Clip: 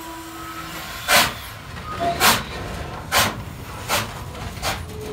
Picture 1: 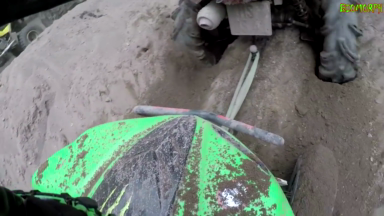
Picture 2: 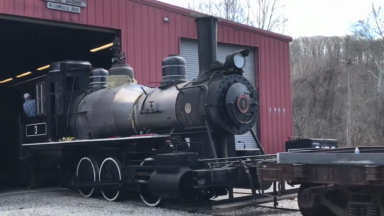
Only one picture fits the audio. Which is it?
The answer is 2